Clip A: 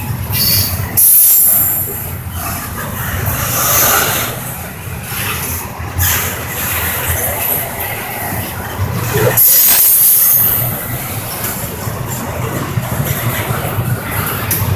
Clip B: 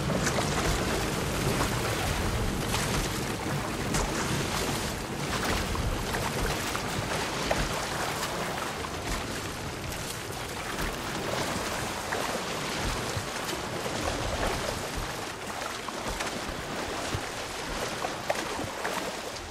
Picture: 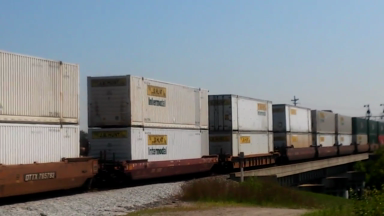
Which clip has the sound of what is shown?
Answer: A